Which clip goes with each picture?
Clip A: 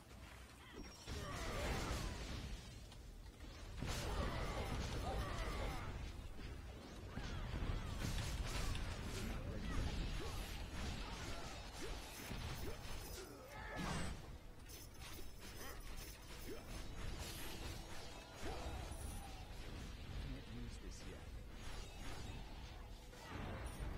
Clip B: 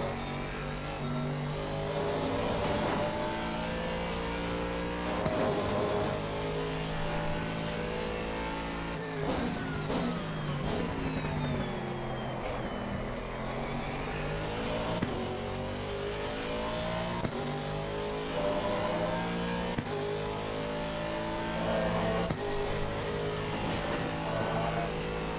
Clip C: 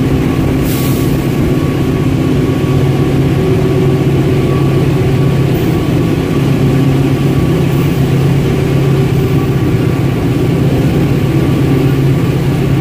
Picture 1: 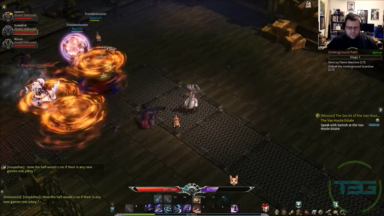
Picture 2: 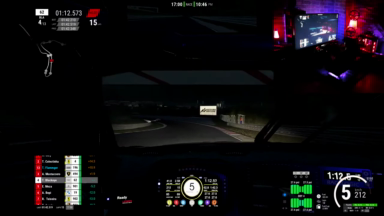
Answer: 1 A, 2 B